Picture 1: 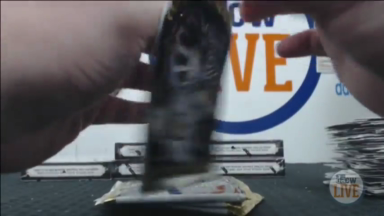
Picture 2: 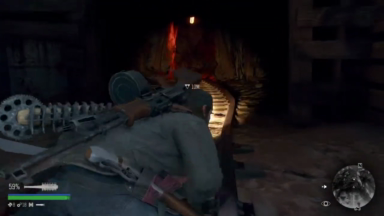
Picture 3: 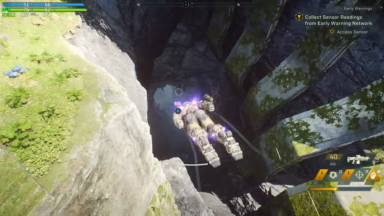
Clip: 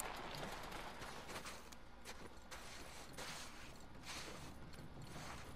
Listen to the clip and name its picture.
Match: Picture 2